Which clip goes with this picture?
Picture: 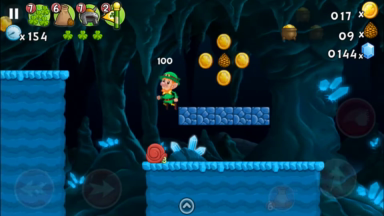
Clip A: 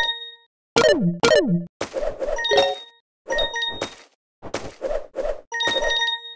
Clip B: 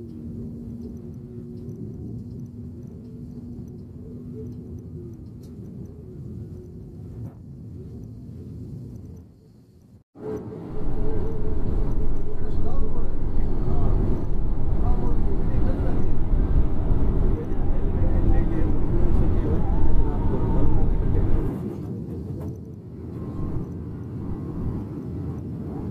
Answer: A